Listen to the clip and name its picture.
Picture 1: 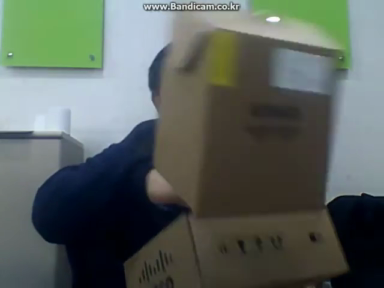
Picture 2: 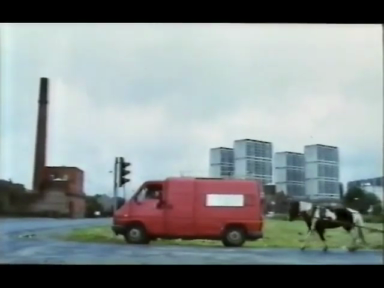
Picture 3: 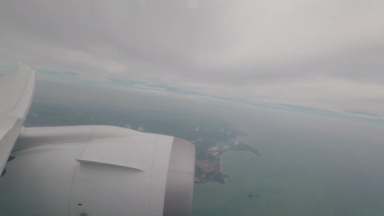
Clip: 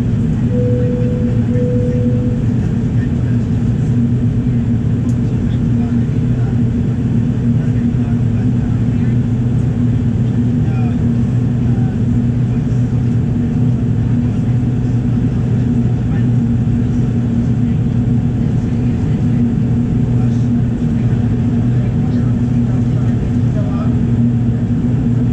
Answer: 3